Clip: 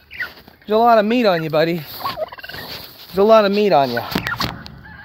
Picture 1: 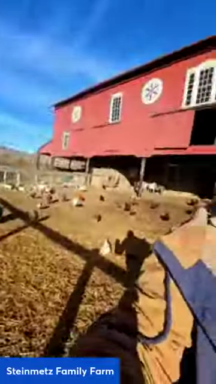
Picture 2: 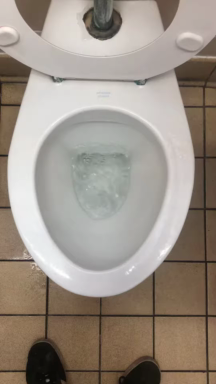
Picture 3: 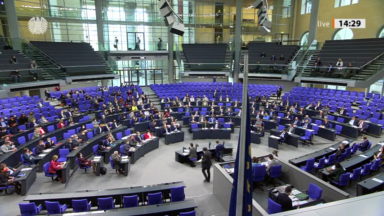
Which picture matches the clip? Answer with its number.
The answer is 1